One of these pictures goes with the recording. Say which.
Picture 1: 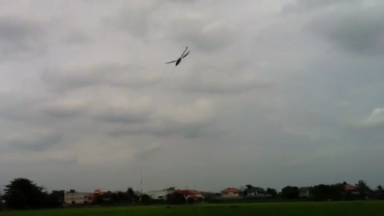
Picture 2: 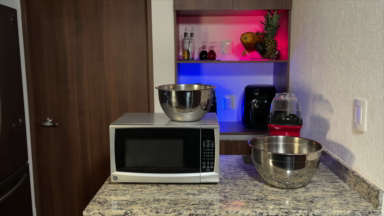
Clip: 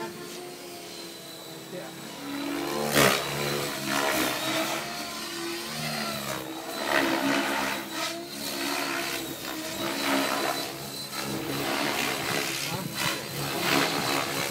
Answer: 1